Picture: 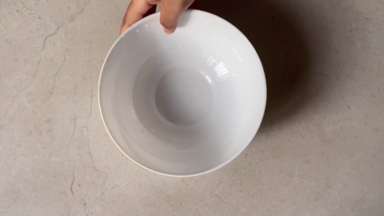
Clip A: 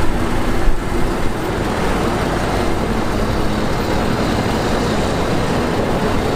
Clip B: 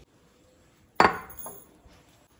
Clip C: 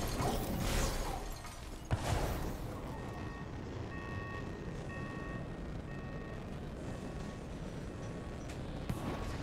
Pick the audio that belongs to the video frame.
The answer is B